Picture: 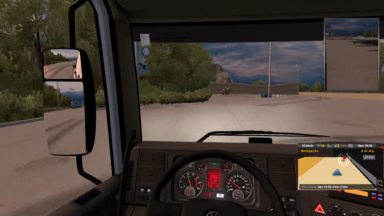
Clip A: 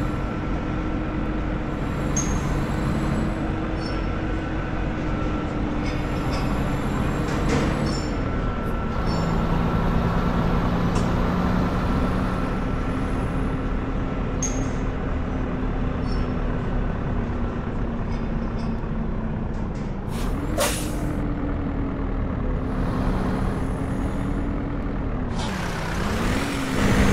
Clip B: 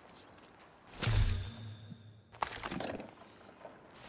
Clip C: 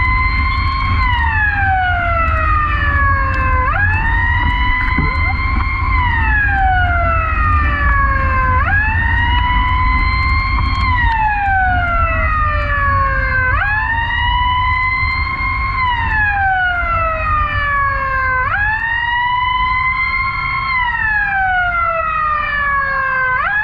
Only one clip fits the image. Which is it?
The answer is A